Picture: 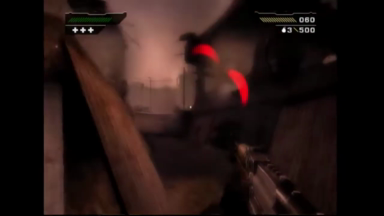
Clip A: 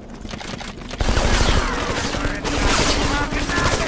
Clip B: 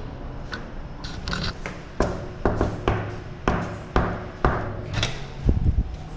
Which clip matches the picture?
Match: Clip A